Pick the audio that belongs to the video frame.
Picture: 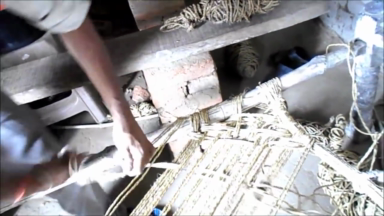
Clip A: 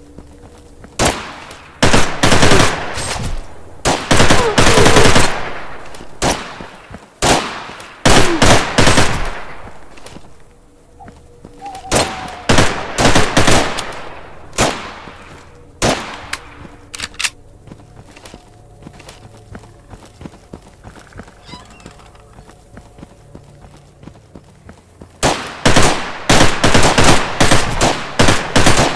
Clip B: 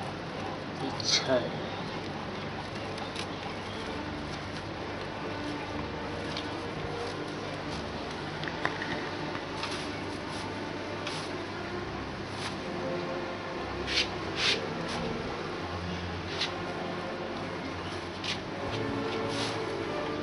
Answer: B